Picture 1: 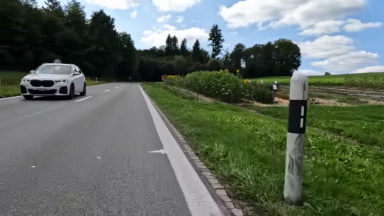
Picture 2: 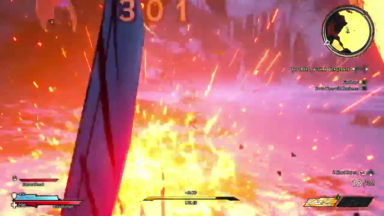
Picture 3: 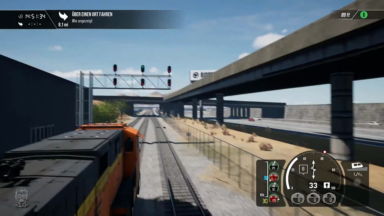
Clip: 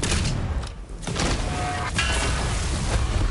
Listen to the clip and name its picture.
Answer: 2